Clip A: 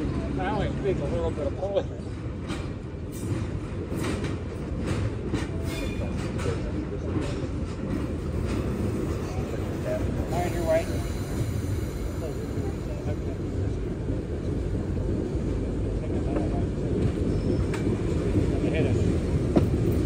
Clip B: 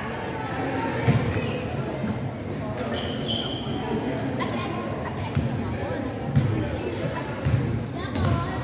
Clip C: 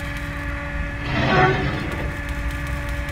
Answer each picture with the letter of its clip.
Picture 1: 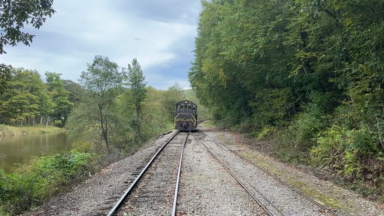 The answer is A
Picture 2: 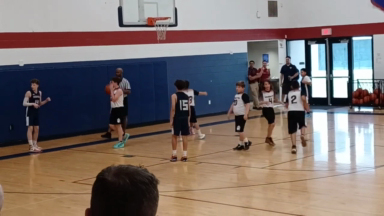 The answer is B